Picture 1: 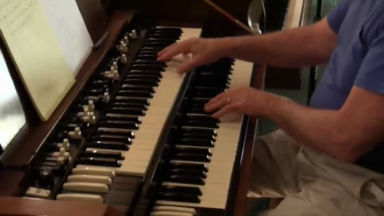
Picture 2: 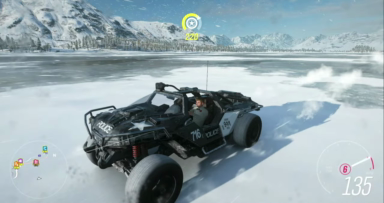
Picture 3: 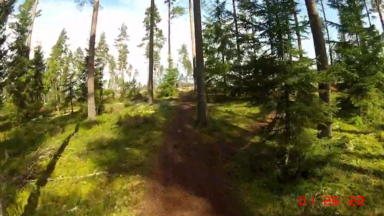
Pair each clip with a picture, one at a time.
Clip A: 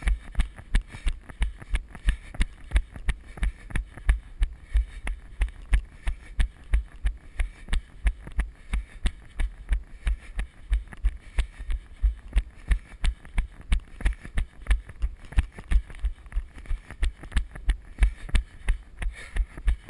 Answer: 3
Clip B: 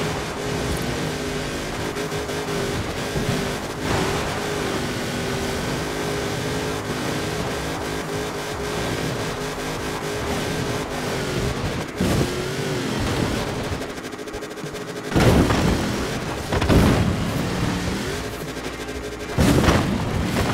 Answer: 2